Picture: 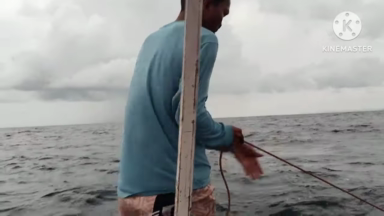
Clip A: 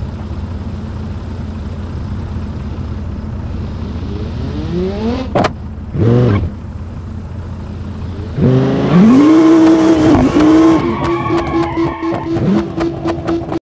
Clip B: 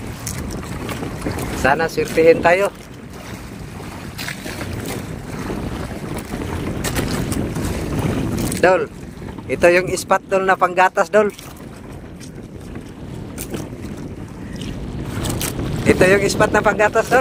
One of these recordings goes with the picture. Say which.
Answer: B